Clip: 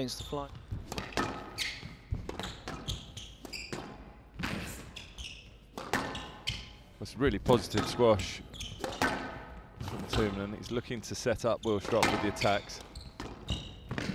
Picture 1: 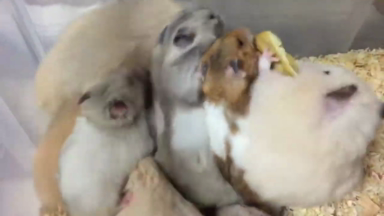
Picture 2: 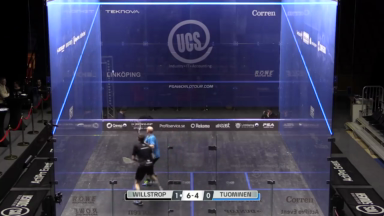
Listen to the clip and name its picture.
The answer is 2